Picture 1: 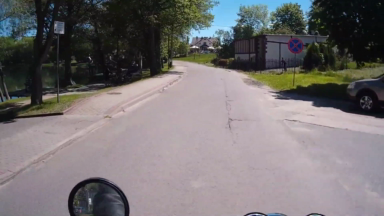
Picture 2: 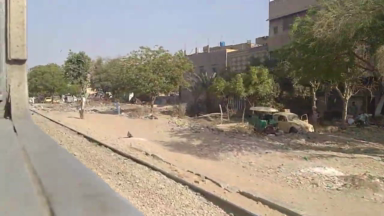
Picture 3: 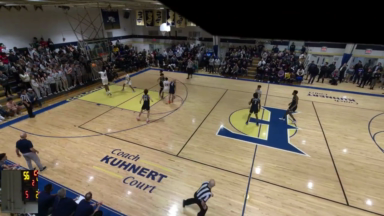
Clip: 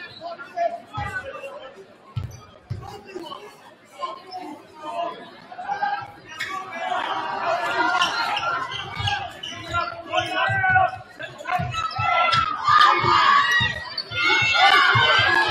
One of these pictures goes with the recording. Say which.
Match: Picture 3